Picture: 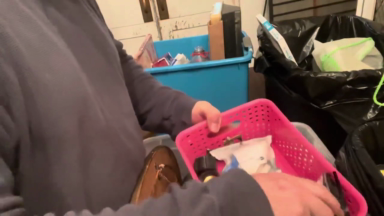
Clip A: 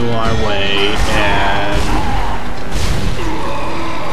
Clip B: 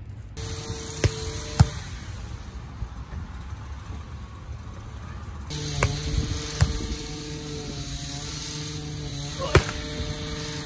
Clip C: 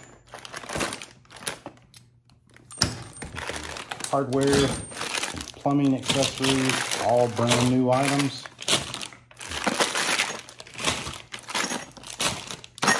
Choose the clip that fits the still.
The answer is C